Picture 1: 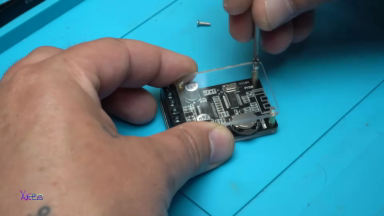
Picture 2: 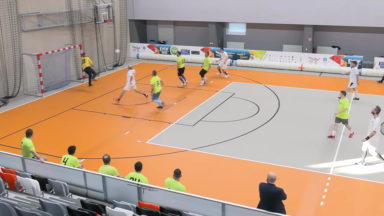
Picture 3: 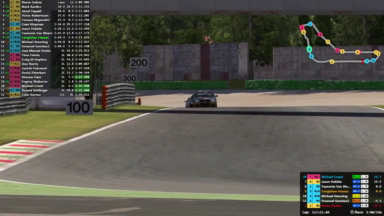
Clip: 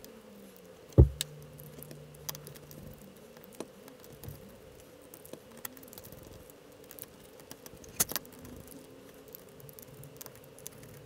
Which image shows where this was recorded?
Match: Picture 1